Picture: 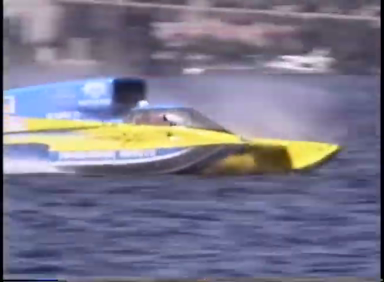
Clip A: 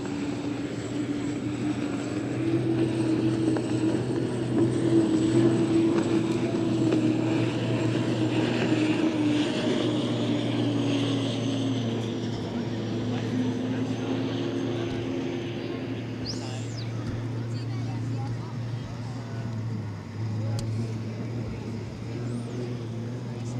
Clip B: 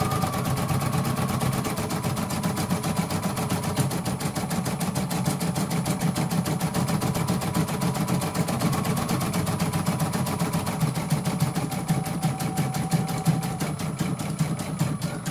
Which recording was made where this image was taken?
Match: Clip A